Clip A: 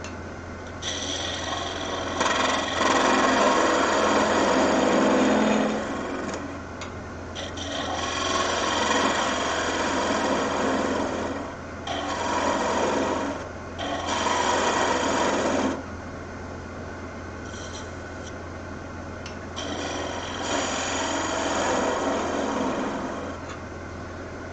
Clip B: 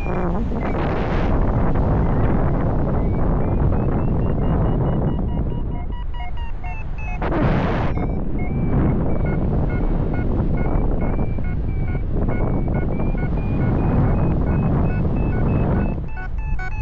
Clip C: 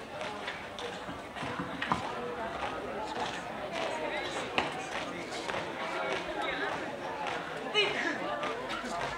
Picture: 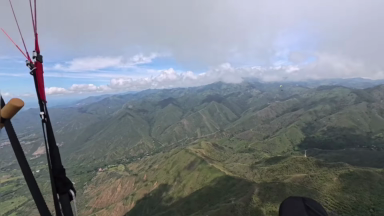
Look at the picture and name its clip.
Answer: B